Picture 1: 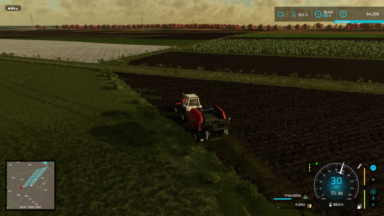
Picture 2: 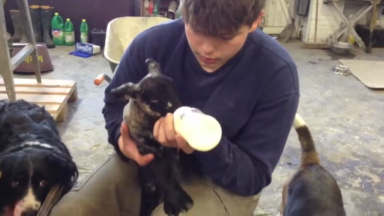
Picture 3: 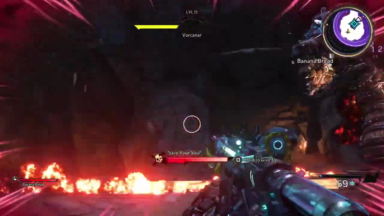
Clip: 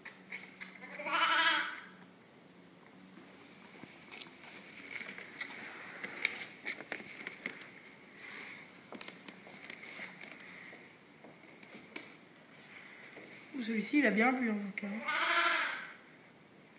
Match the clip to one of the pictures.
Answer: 2